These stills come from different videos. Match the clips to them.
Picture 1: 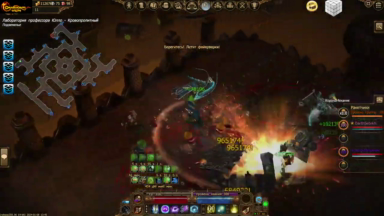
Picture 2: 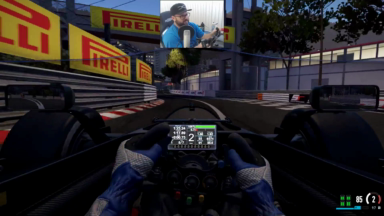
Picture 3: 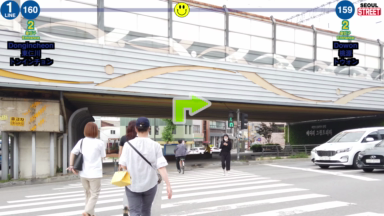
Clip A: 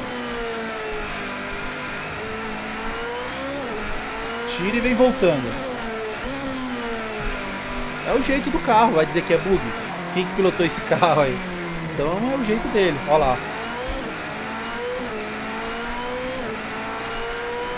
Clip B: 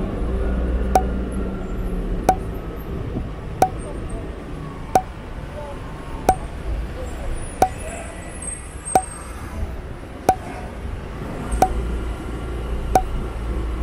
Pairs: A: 2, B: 3